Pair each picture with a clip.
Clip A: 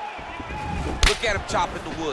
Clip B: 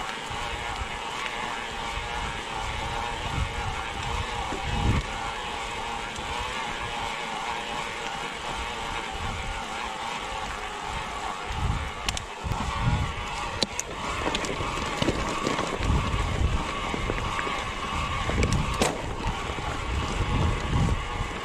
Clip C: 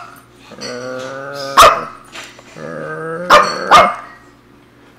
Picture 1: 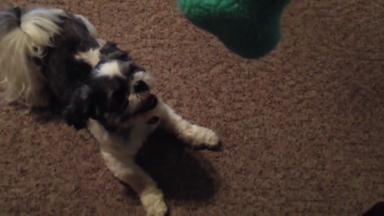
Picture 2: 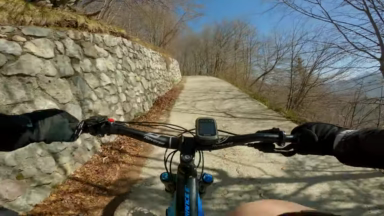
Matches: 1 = C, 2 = B